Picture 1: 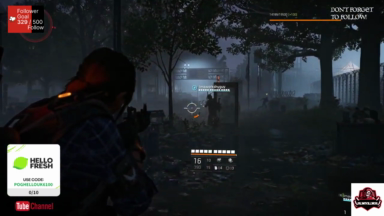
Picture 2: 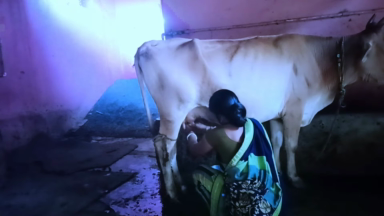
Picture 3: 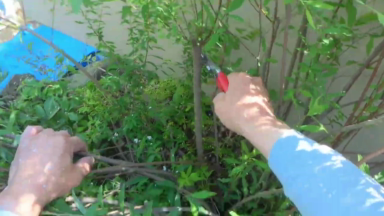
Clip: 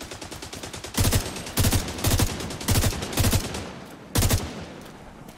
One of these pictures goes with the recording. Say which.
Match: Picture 1